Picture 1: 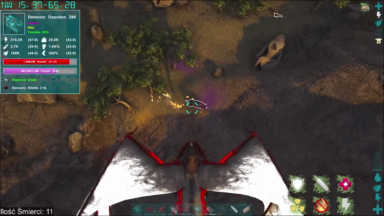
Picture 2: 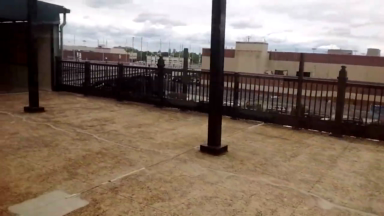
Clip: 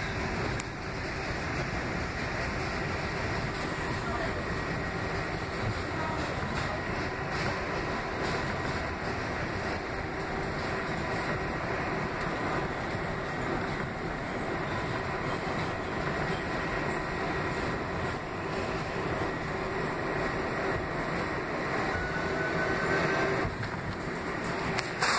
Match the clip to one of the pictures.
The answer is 2